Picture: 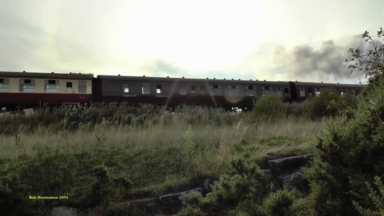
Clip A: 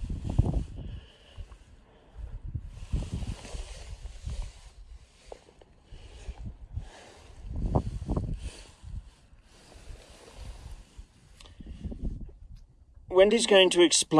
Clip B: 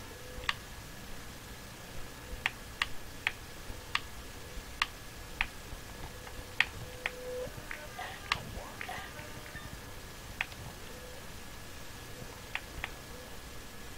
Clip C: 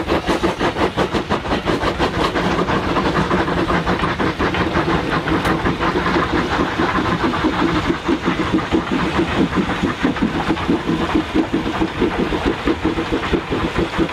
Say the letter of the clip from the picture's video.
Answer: C